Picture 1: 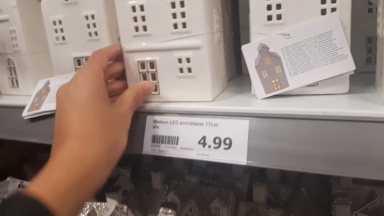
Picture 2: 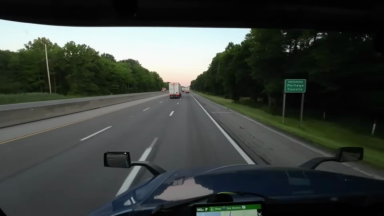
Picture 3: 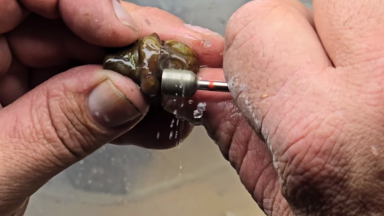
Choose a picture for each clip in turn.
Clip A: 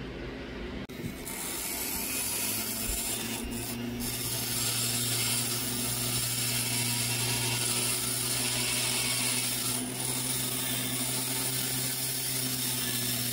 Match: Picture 3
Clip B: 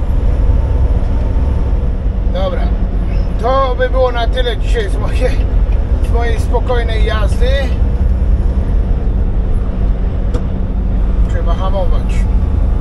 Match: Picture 2